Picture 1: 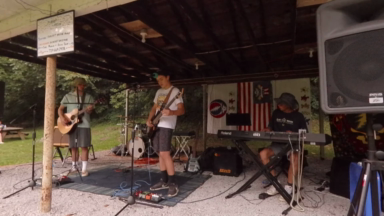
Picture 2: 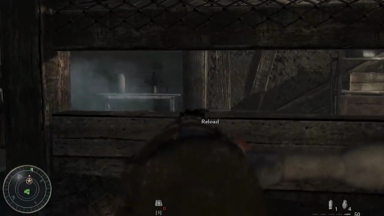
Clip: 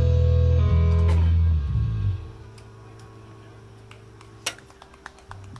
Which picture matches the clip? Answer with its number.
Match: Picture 1